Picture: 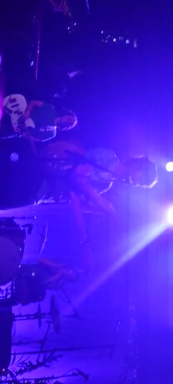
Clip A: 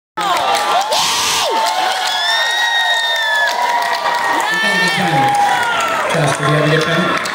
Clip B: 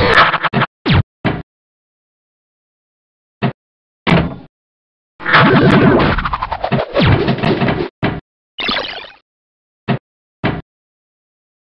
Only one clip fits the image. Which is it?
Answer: A